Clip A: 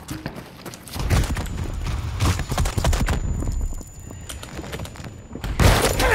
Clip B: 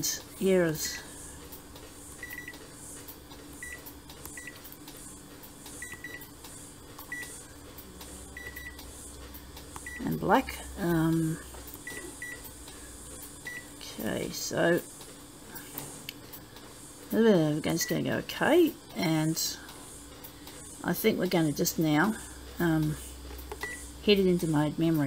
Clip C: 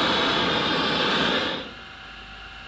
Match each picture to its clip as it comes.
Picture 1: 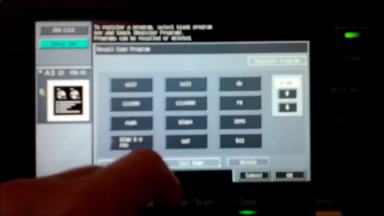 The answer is B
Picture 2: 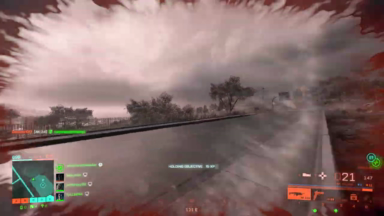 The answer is A